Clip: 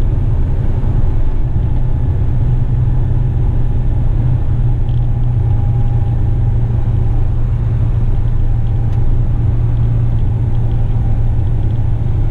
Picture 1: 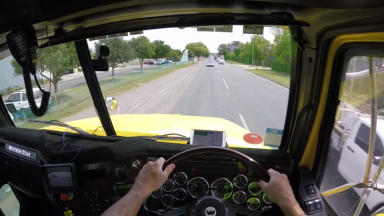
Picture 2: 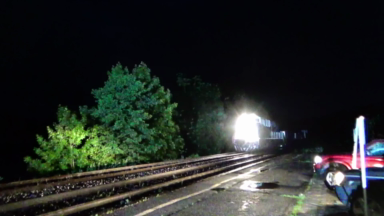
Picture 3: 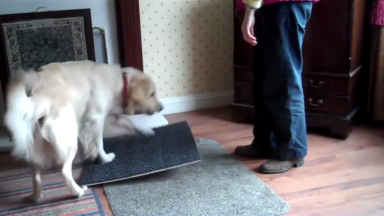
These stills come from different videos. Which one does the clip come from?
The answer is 1